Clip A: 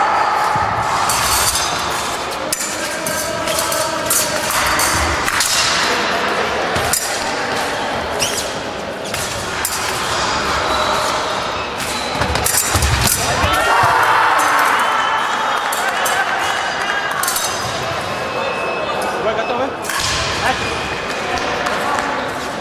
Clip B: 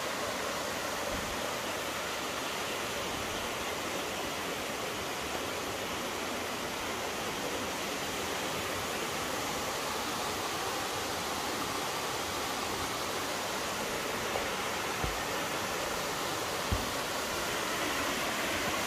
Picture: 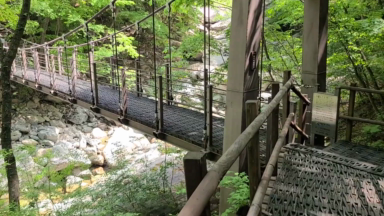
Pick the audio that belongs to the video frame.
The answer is B